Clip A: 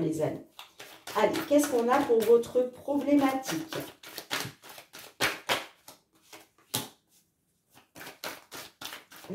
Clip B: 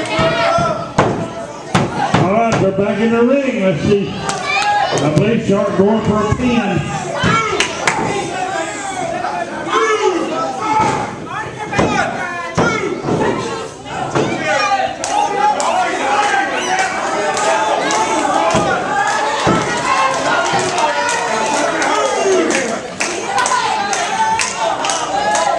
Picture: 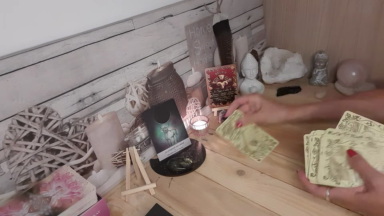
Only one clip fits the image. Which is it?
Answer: A